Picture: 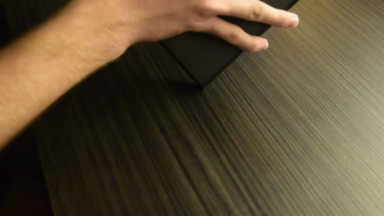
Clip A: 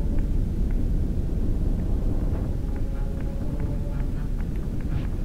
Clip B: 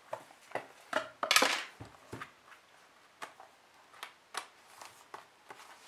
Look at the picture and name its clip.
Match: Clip B